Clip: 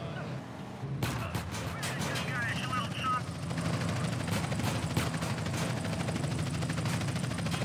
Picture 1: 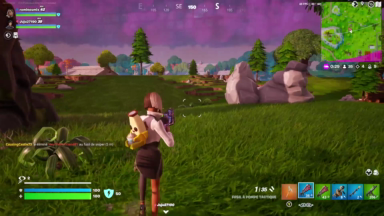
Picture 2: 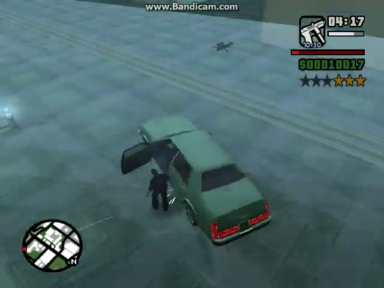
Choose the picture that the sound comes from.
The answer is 2